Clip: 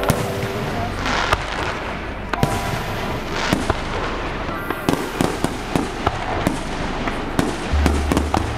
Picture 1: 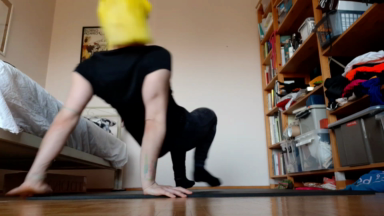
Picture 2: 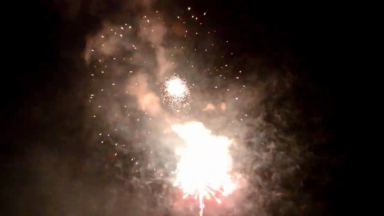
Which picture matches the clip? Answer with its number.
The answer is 2